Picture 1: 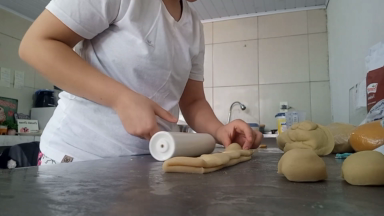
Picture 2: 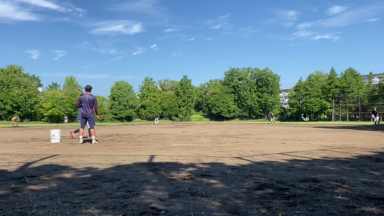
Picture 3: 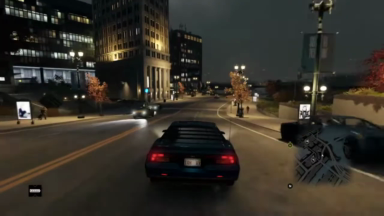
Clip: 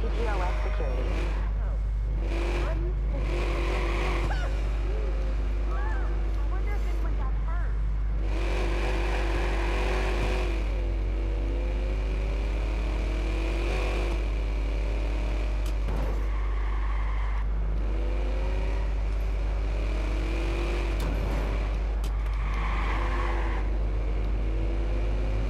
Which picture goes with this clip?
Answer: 3